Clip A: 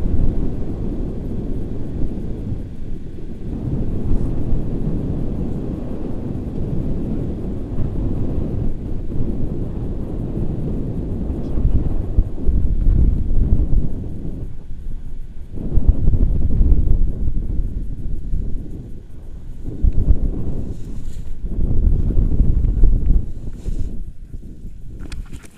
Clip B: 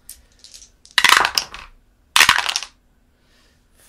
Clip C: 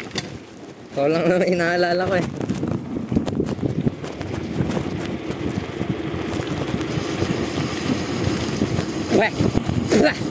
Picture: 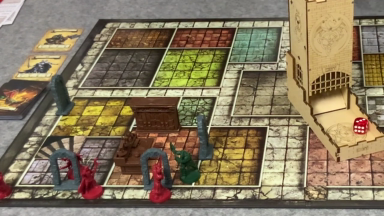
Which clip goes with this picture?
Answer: B